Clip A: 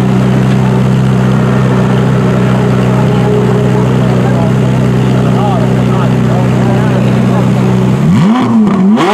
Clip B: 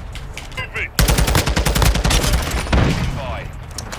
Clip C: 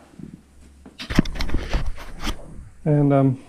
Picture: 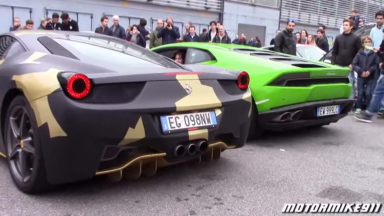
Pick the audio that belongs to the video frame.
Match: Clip A